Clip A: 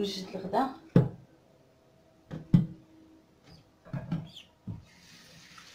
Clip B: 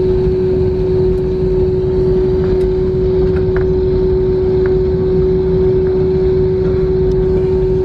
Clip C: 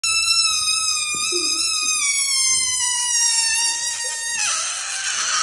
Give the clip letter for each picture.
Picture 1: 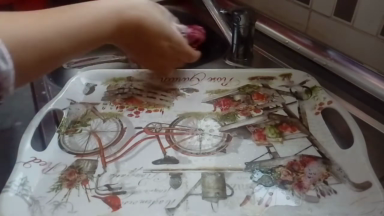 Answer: A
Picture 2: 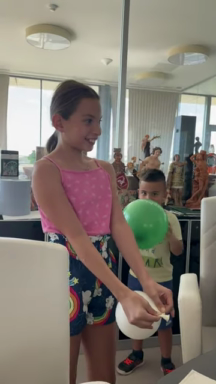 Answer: C